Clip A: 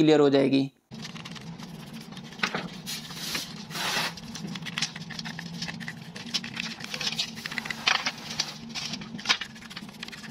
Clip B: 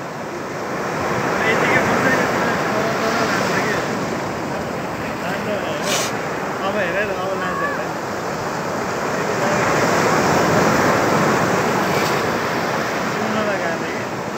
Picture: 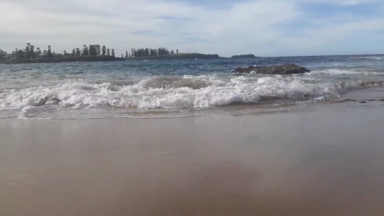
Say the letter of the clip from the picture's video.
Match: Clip B